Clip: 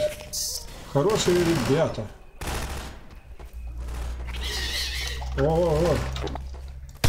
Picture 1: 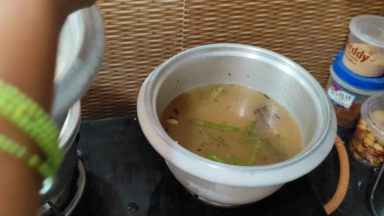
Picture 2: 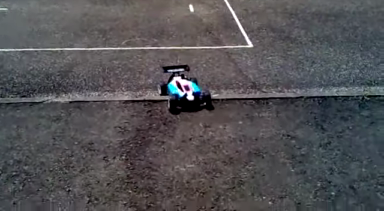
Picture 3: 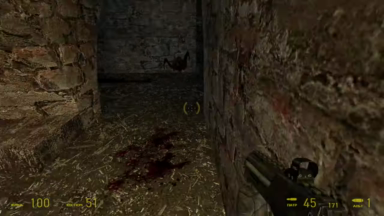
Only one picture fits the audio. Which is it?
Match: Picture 3